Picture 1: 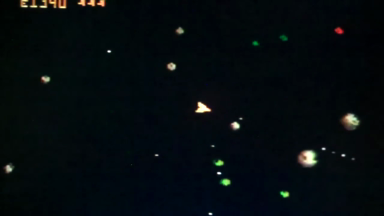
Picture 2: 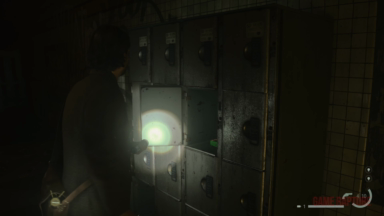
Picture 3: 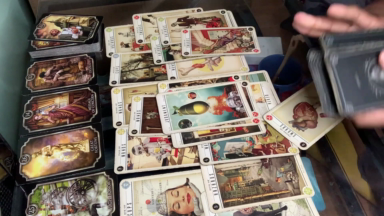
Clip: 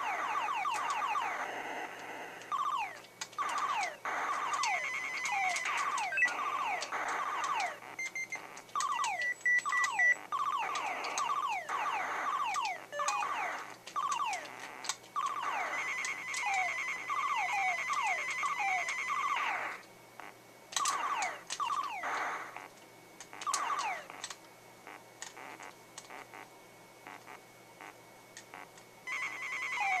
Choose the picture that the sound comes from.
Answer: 1